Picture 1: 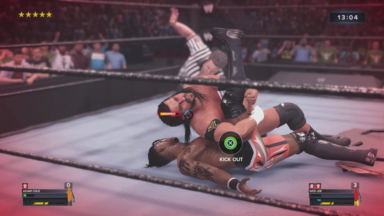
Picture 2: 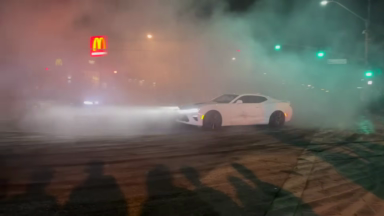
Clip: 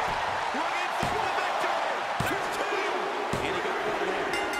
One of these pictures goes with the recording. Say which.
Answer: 1